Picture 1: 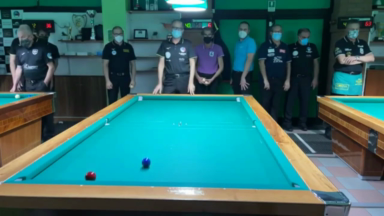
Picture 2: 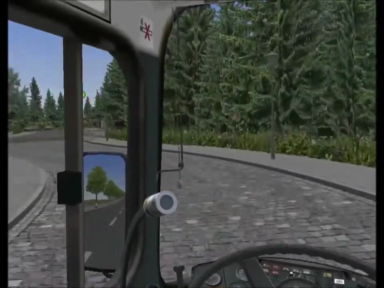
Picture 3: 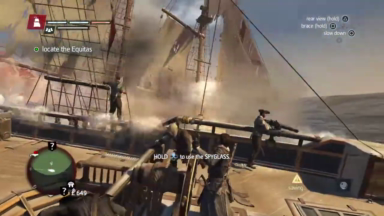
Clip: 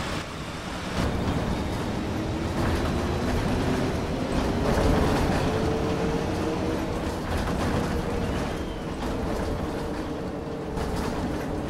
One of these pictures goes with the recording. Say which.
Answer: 2